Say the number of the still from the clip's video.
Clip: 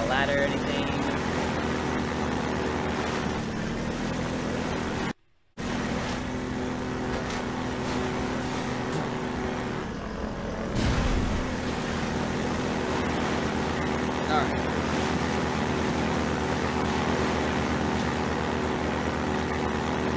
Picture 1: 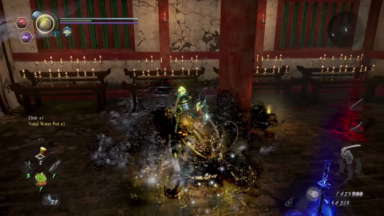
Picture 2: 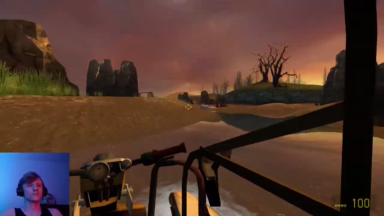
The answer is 2